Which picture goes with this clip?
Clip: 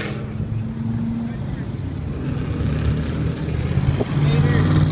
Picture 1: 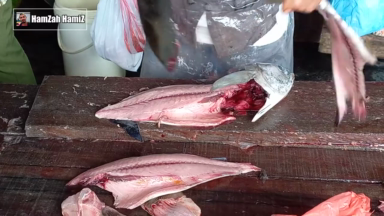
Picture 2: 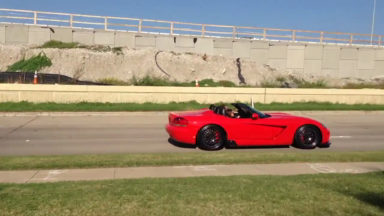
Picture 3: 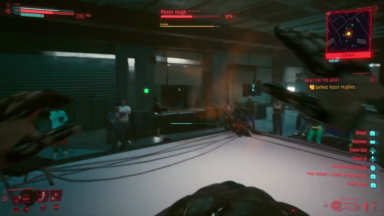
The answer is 2